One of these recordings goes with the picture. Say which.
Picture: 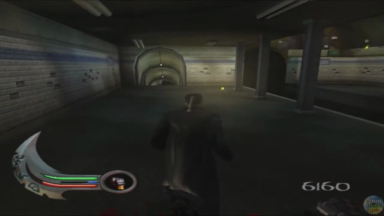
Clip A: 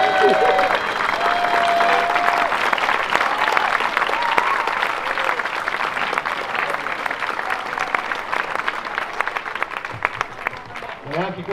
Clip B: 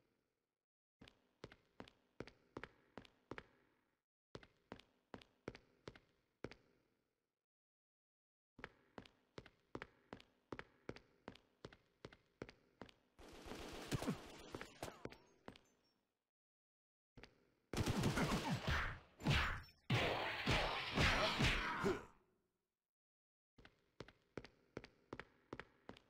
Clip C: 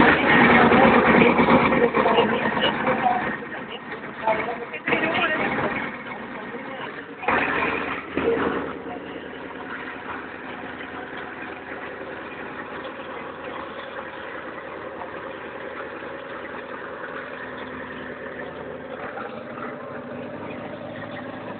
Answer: B